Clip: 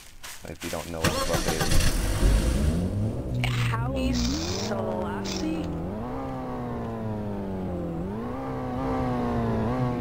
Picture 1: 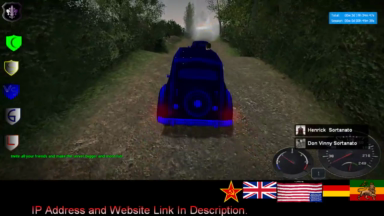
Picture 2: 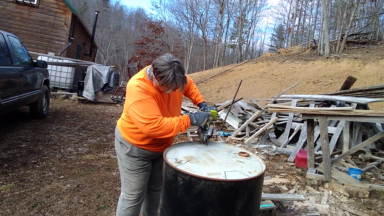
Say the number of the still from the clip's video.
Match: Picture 1